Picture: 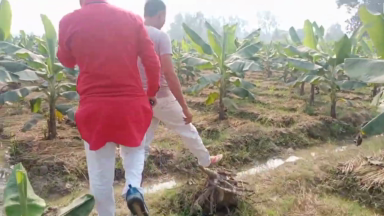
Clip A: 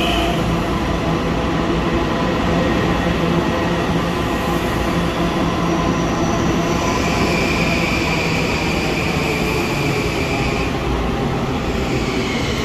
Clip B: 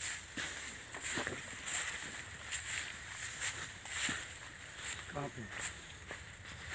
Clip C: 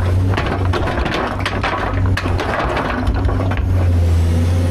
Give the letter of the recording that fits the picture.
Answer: B